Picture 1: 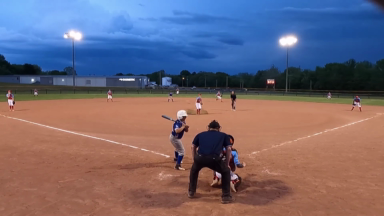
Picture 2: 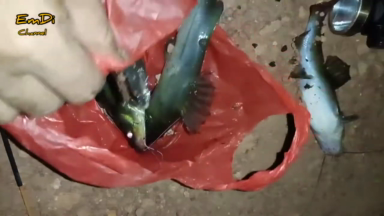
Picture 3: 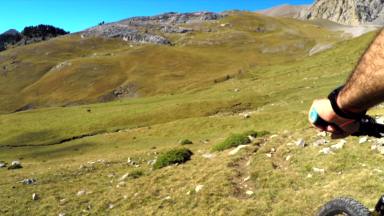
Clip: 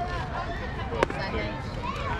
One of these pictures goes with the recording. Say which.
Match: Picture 1